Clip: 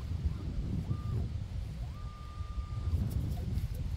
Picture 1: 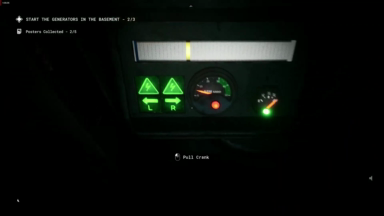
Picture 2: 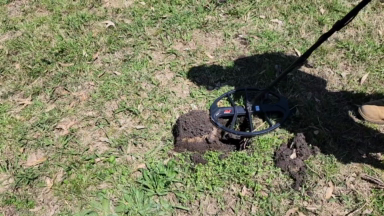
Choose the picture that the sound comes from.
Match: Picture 2